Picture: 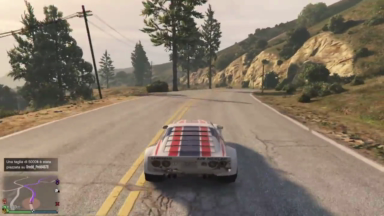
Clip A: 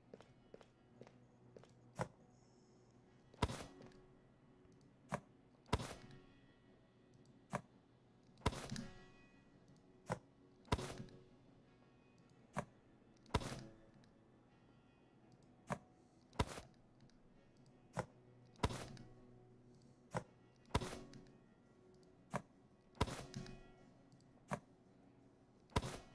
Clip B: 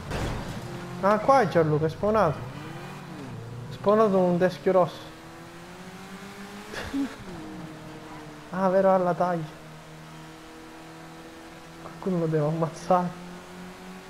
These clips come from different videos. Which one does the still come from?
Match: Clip B